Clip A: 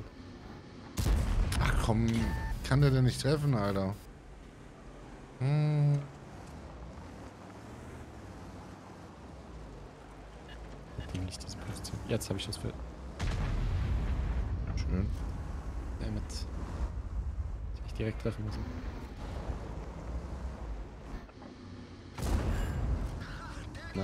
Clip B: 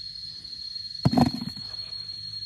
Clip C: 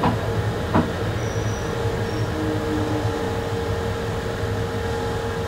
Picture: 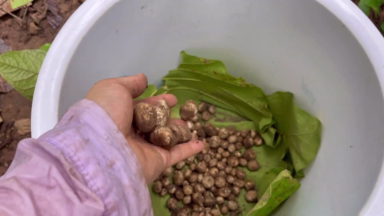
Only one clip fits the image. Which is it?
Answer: B